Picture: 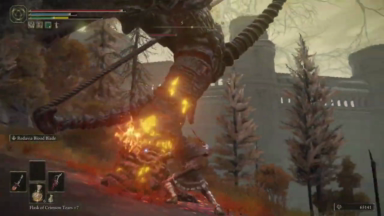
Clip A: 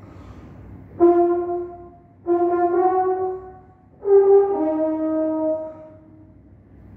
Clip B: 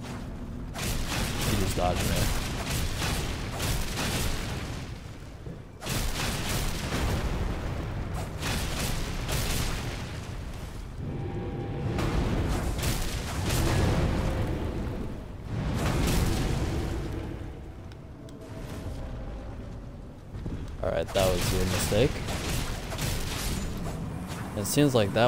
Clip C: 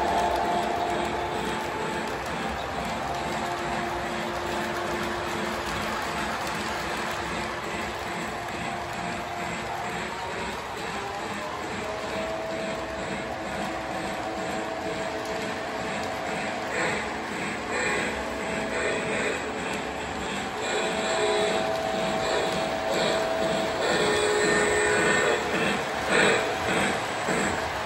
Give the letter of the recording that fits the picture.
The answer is B